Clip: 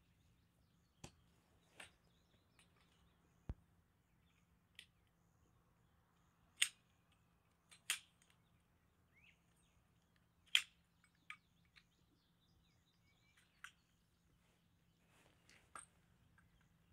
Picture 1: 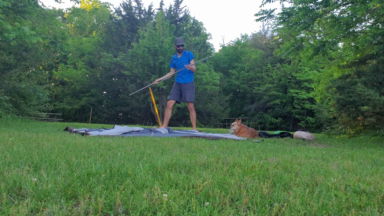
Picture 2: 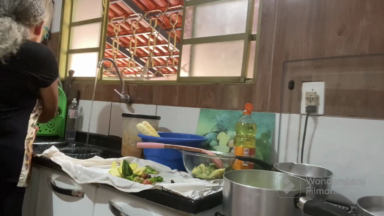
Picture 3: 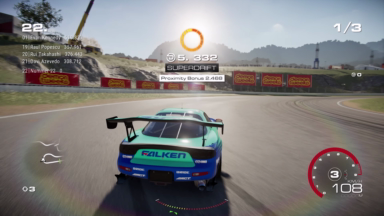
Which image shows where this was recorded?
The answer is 1